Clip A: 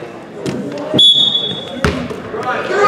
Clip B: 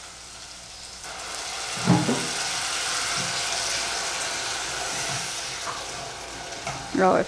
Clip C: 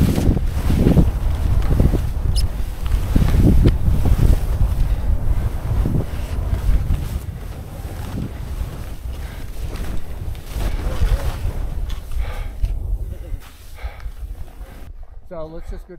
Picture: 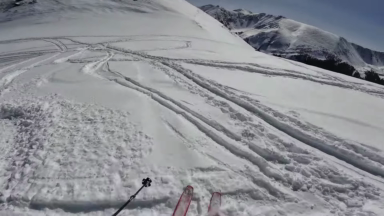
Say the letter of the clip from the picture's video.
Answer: C